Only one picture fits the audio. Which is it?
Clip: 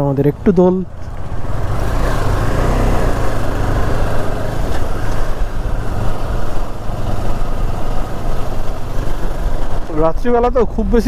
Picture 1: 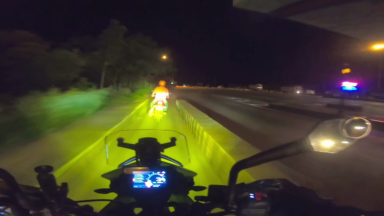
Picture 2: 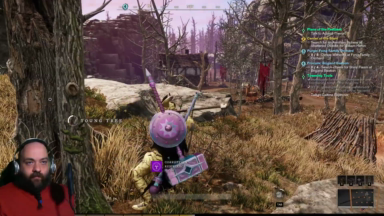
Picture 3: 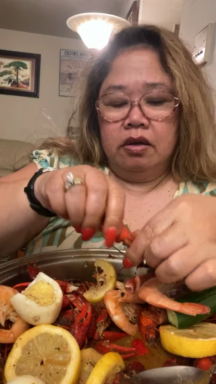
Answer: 1